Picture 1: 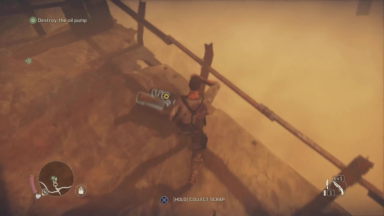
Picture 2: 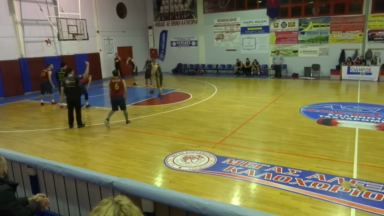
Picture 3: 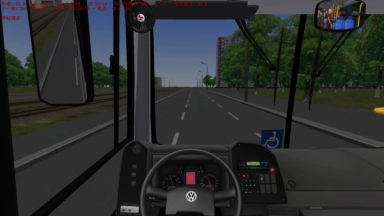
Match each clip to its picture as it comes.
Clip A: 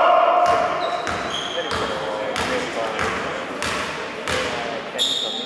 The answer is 2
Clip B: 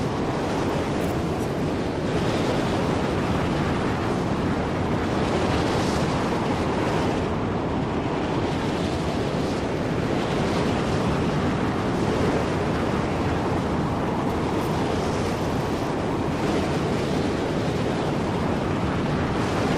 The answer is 1